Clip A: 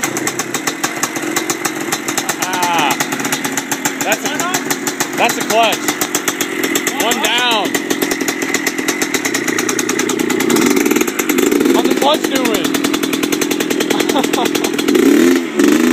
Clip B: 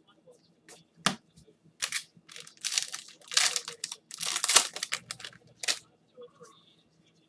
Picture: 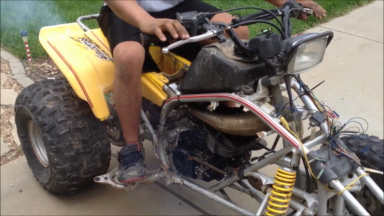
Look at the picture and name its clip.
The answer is A